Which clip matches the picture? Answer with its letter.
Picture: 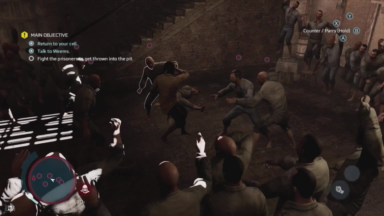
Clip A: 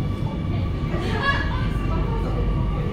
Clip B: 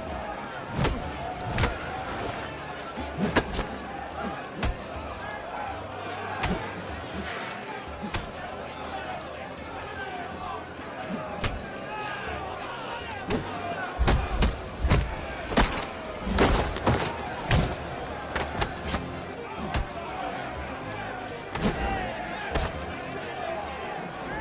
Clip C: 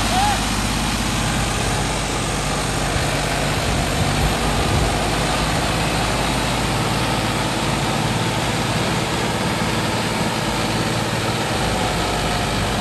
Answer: B